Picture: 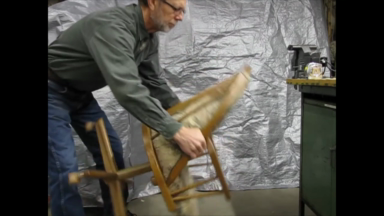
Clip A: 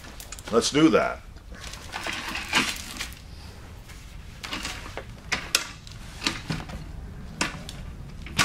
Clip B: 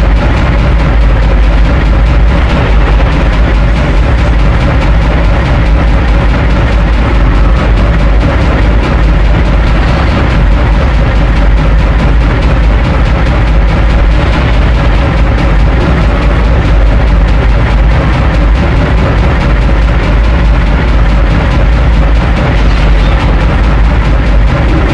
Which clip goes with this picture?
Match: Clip A